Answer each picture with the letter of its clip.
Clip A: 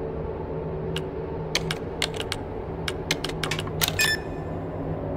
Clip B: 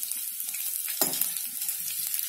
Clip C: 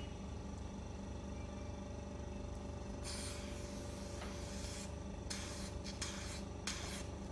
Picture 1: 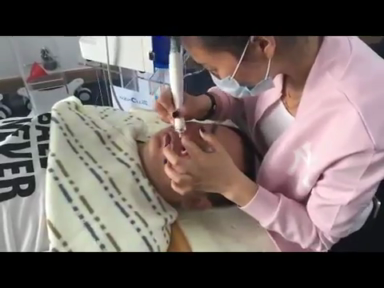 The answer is C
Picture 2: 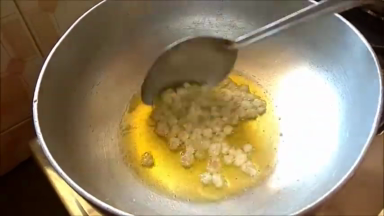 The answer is B